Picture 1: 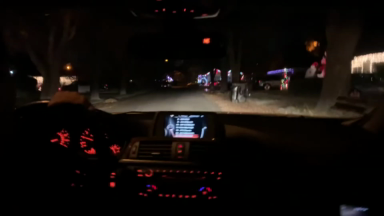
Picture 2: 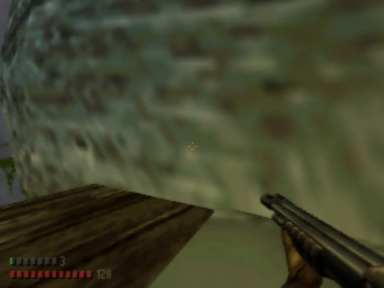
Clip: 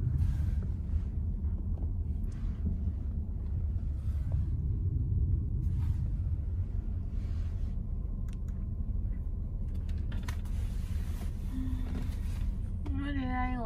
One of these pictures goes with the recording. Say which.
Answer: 1